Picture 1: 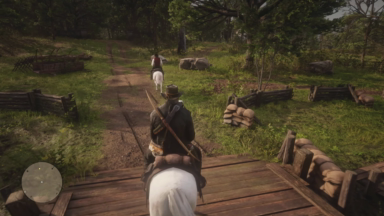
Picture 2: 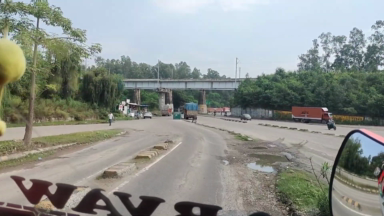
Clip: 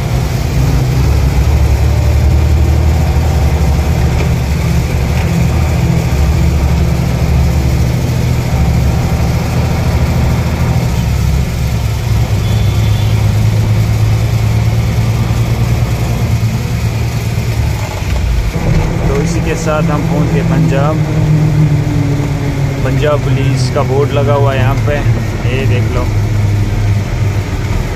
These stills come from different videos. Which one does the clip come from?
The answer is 2